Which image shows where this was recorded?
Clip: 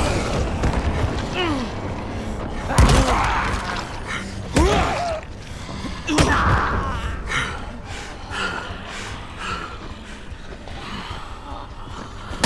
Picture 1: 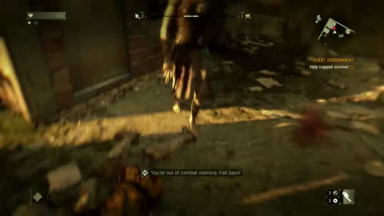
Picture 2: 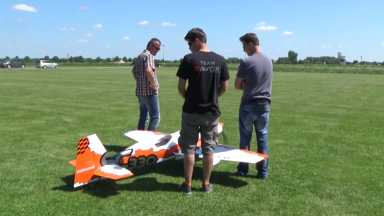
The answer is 1